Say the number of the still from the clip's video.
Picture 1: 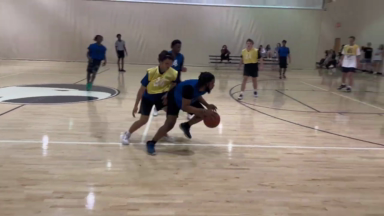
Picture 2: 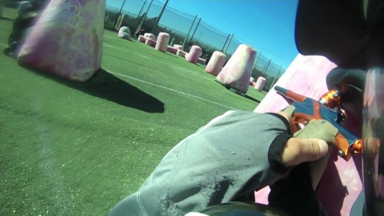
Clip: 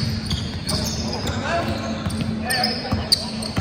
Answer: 1